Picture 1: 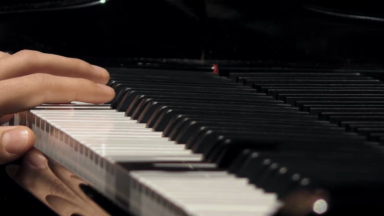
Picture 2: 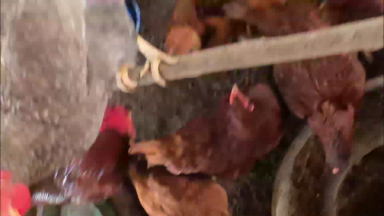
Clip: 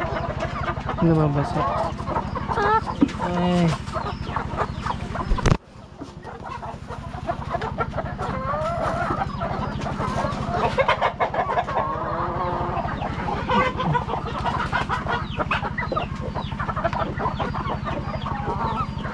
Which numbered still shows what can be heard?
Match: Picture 2